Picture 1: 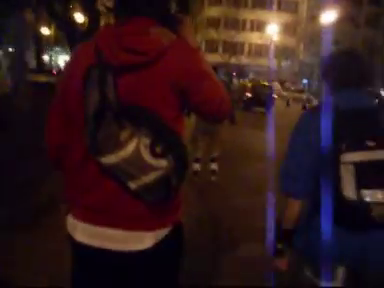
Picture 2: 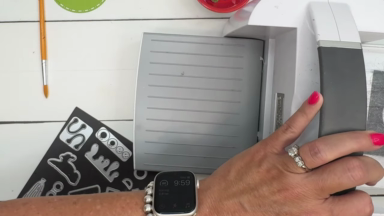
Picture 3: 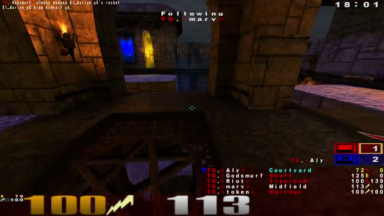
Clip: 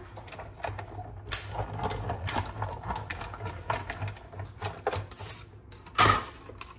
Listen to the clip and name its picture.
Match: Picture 2